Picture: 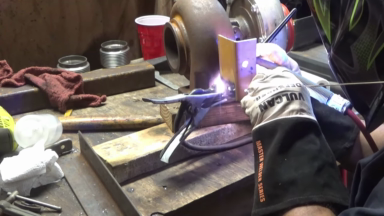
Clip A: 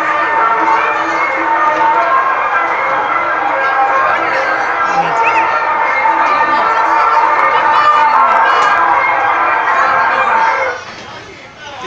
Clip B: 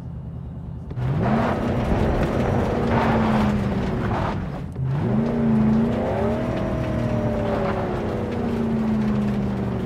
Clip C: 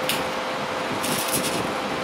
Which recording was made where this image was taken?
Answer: C